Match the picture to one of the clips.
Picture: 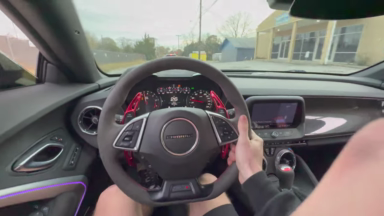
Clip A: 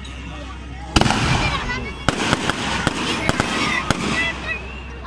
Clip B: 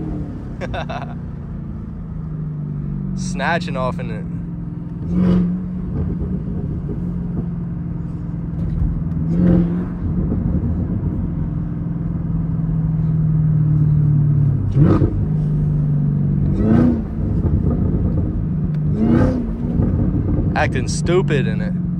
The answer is B